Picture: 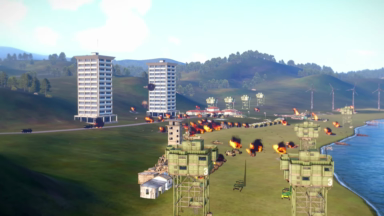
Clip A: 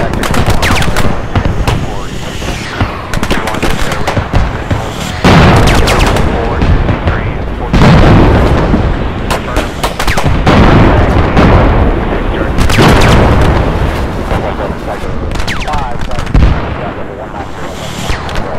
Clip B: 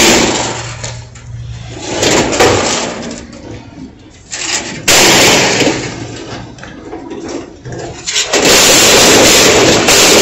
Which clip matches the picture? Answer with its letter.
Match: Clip A